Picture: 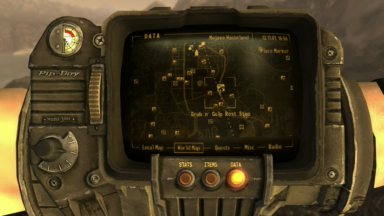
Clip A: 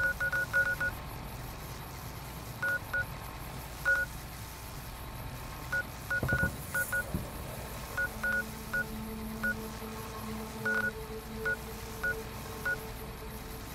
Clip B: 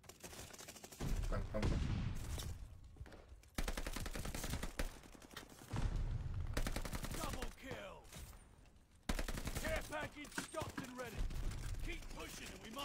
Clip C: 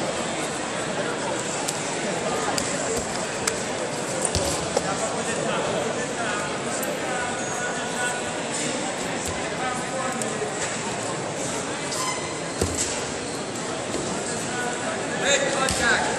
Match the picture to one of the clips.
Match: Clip A